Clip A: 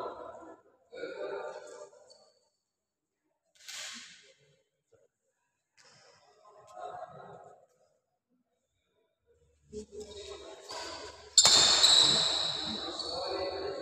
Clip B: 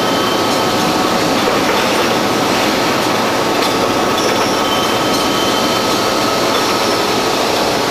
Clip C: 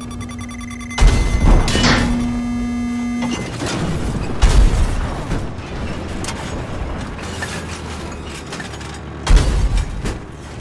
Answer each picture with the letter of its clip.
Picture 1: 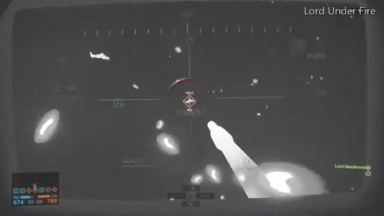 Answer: C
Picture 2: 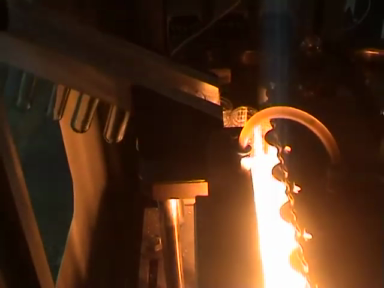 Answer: B